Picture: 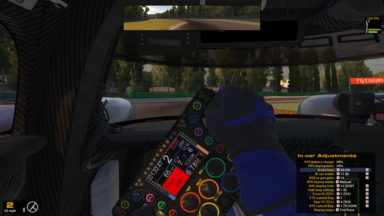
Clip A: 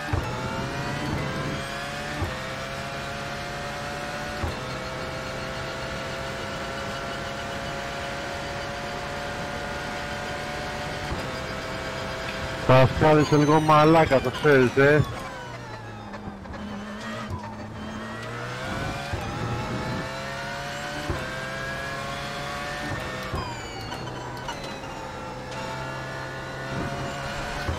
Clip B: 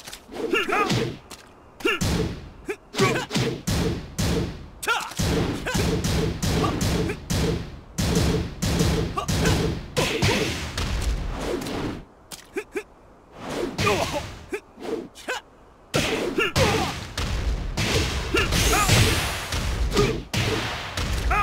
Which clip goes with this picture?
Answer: A